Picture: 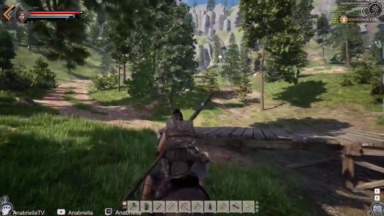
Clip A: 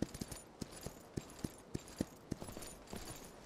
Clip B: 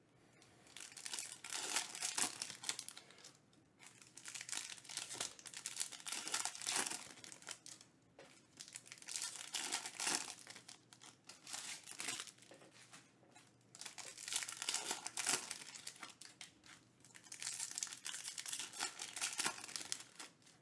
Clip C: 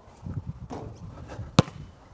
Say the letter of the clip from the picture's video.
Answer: A